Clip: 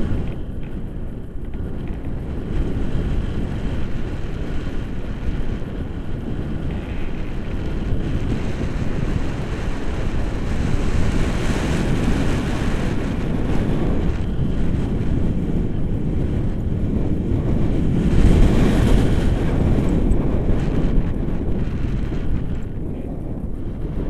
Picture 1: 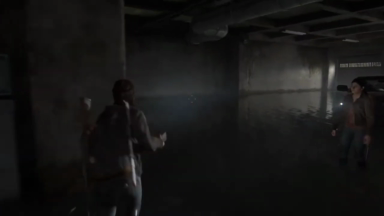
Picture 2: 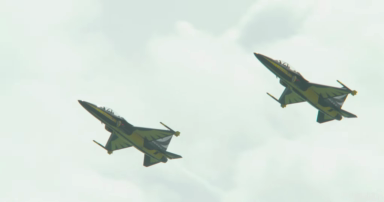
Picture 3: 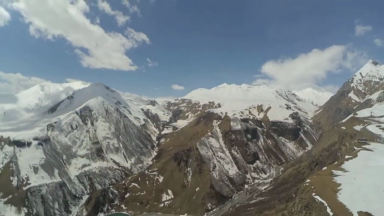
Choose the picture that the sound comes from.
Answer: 3